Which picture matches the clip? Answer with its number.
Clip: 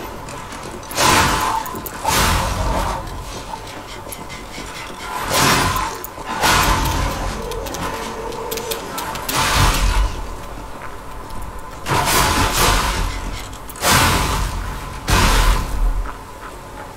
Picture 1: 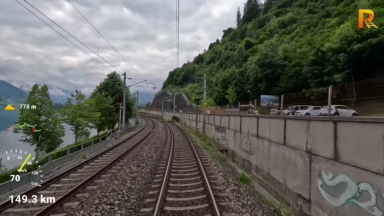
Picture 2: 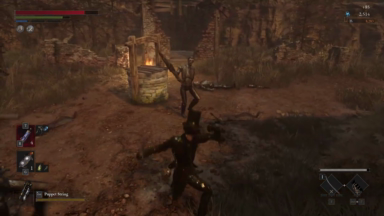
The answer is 2